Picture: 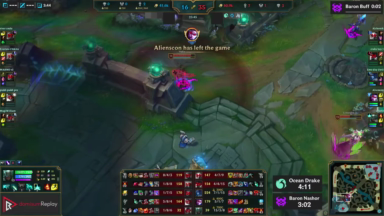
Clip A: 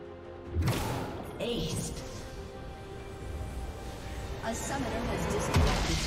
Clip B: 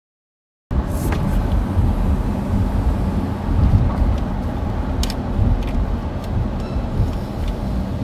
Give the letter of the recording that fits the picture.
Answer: A